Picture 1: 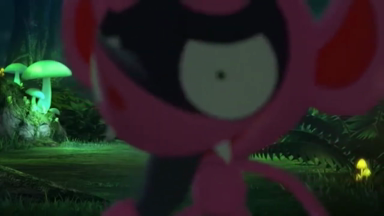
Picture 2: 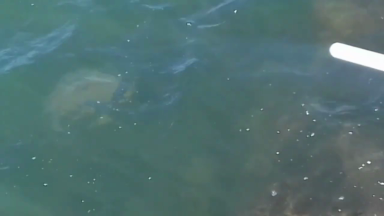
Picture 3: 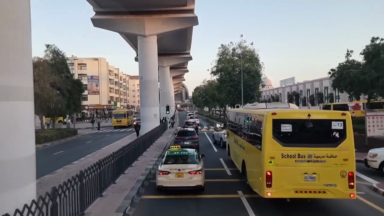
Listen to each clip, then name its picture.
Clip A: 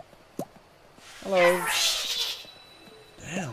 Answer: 1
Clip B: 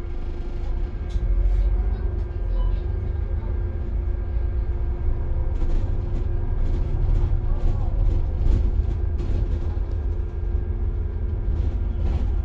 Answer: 3